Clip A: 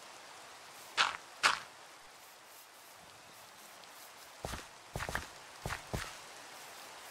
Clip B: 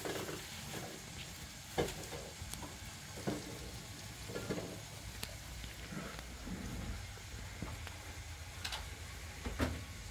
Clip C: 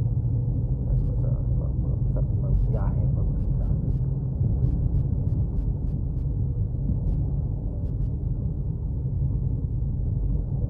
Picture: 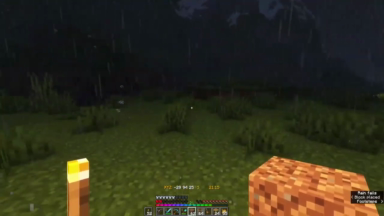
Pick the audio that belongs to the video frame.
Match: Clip A